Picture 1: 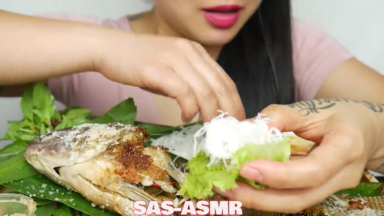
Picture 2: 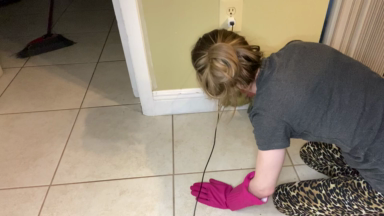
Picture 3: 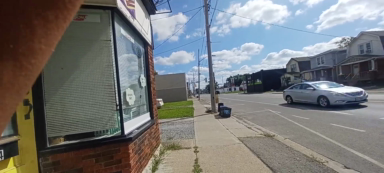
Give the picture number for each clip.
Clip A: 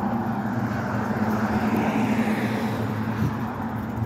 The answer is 3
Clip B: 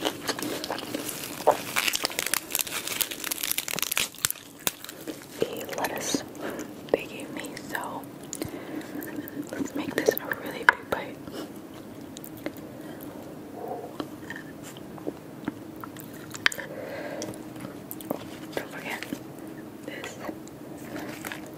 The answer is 1